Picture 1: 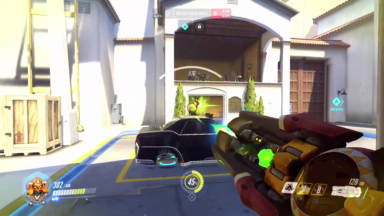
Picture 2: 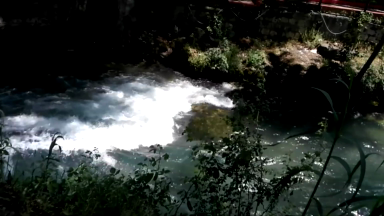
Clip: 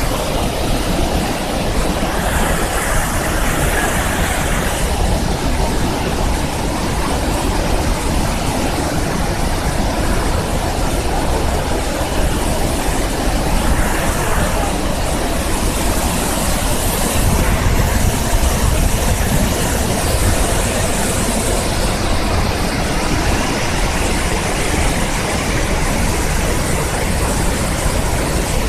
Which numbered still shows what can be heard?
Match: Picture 2